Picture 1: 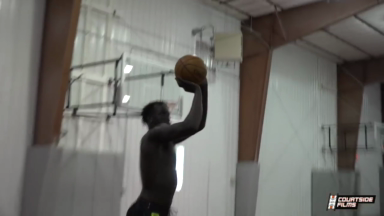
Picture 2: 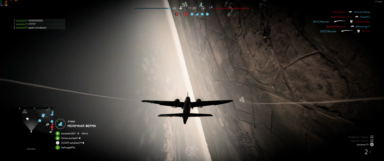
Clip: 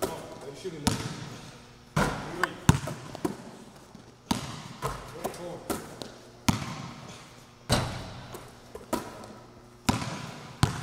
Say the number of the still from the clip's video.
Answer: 1